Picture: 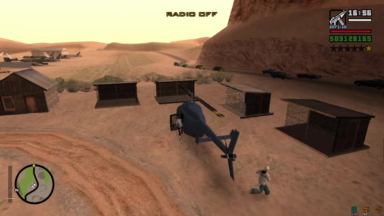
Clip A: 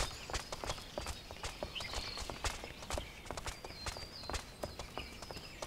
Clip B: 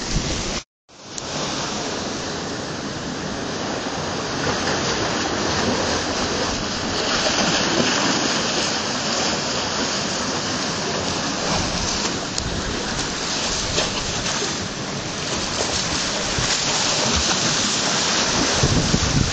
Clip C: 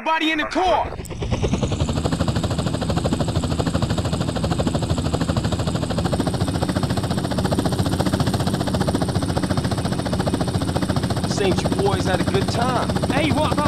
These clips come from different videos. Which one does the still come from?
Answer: C